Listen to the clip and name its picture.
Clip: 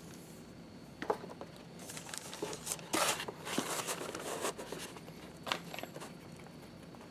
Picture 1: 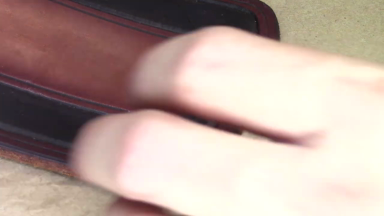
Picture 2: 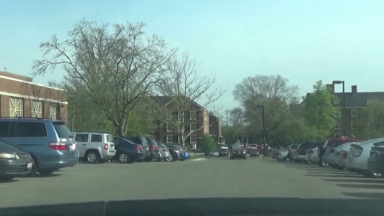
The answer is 1